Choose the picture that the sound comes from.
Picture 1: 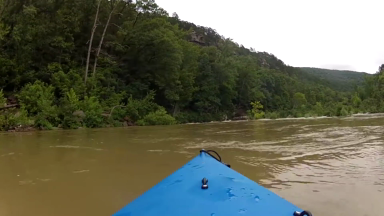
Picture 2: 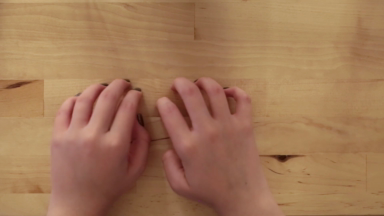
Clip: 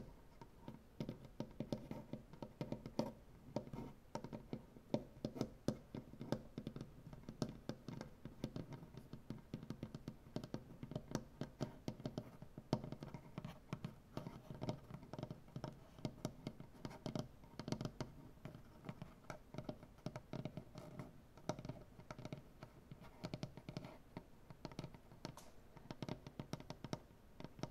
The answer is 2